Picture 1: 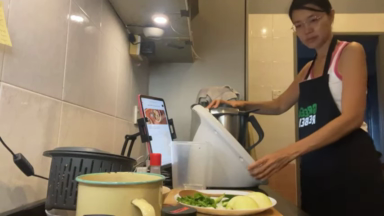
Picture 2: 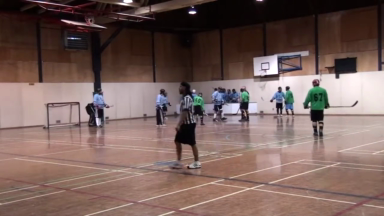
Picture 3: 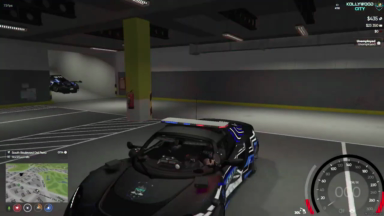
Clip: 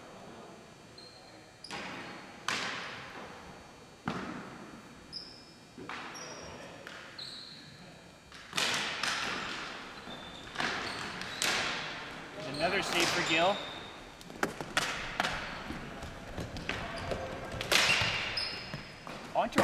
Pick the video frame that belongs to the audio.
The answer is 2